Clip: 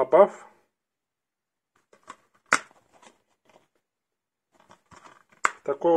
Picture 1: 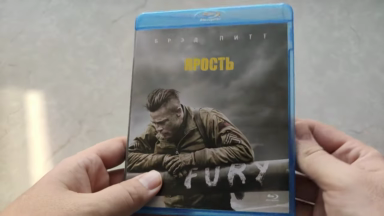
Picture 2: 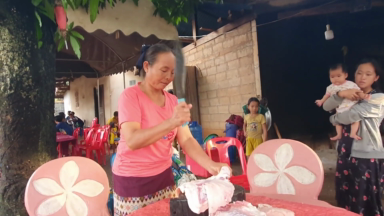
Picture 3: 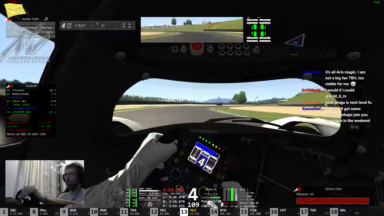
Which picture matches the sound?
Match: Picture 1